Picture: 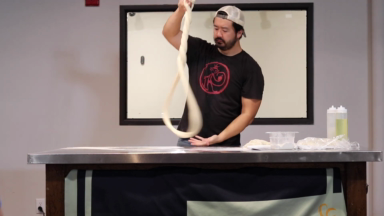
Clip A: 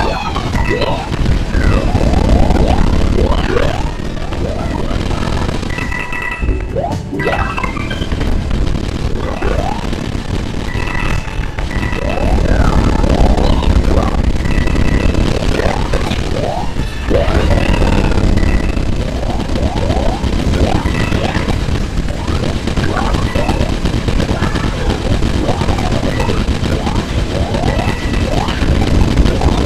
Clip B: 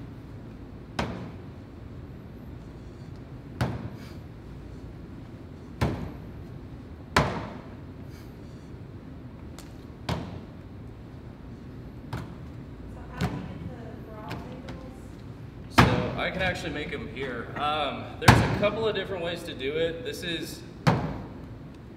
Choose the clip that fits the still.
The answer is B